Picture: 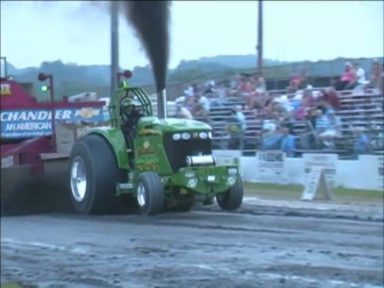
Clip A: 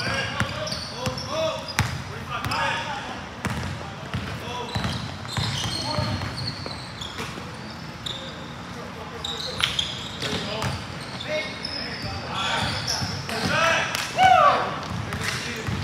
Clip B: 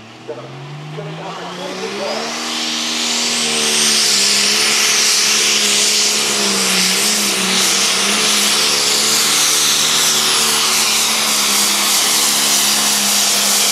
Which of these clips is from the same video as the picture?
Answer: B